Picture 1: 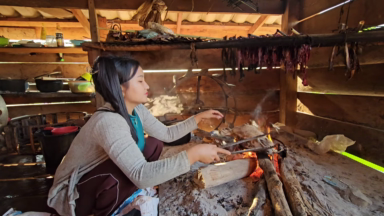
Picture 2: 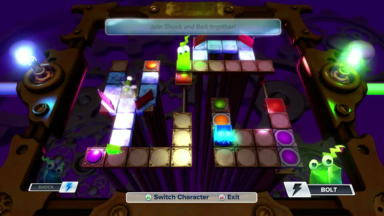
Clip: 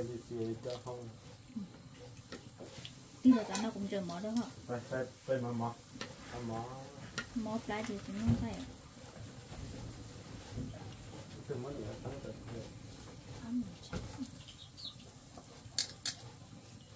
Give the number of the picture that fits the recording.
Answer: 1